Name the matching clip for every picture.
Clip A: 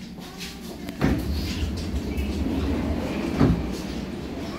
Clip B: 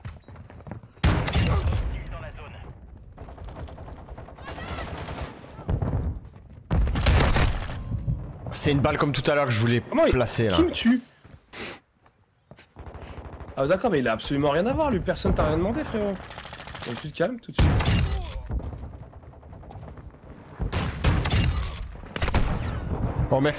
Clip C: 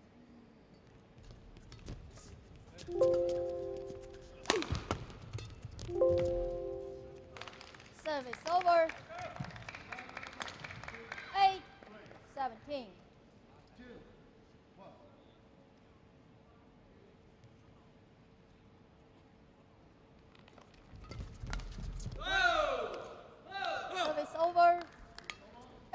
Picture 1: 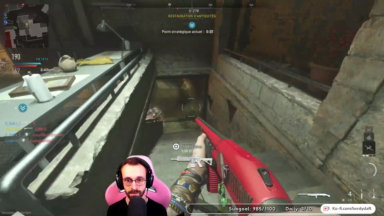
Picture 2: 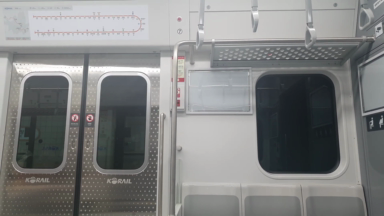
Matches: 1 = B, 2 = A